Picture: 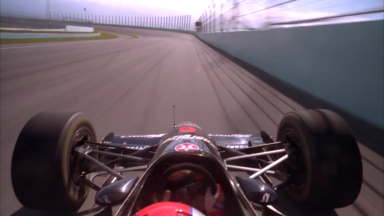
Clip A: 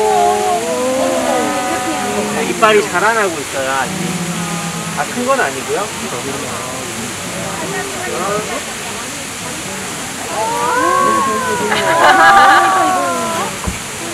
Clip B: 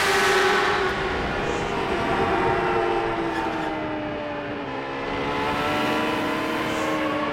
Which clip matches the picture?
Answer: B